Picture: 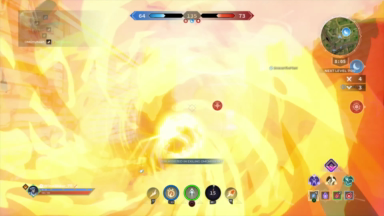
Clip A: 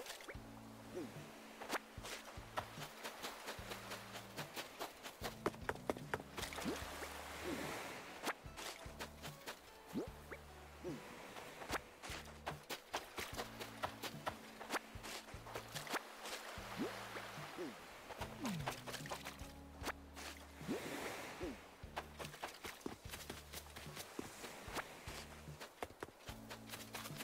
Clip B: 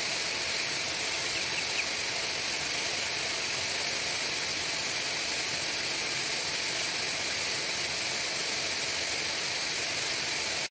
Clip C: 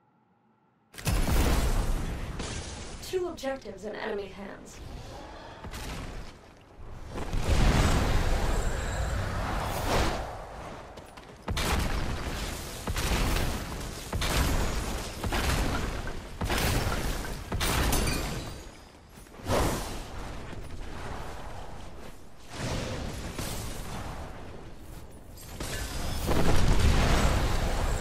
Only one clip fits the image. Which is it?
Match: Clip C